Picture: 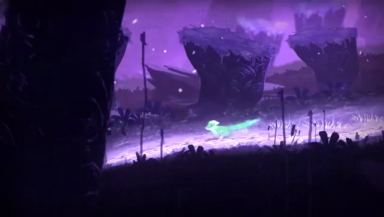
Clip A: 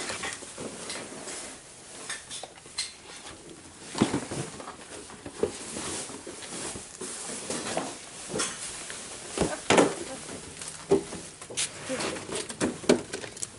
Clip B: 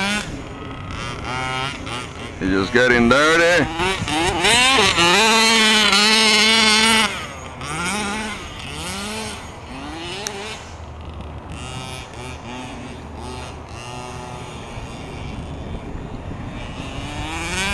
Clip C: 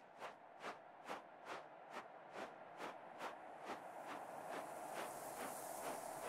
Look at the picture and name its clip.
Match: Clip C